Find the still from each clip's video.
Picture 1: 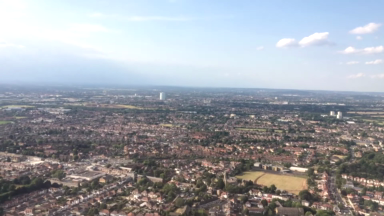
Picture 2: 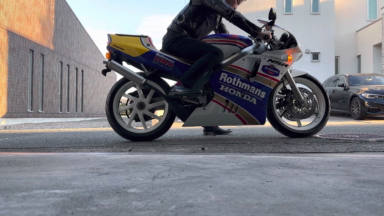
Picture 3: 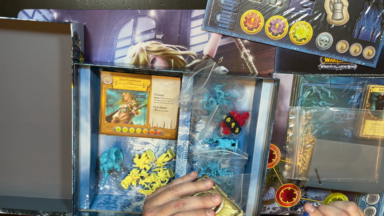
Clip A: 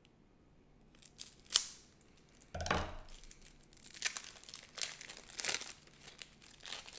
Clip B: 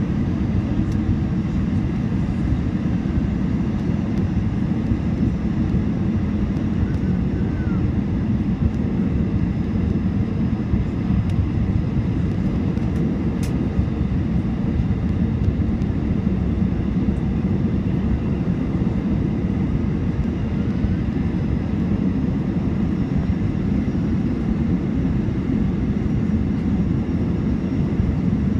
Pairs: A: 3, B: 1